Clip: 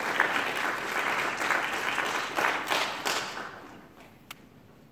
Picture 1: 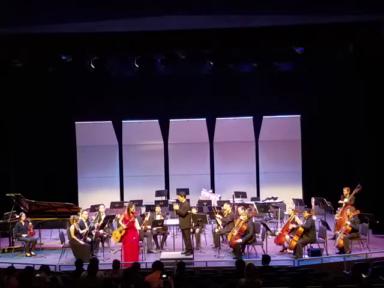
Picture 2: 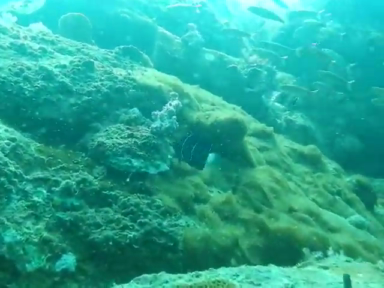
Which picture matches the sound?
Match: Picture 1